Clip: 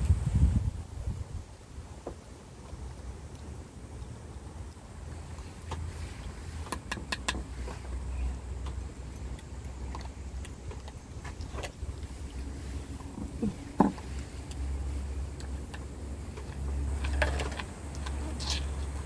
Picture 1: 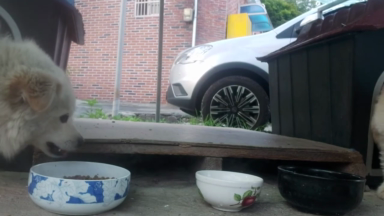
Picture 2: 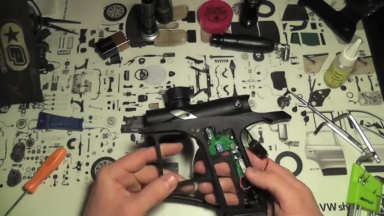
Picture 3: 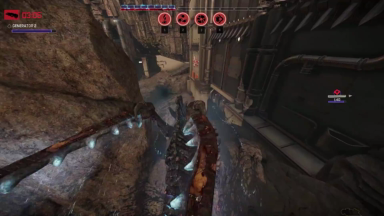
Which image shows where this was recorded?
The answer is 1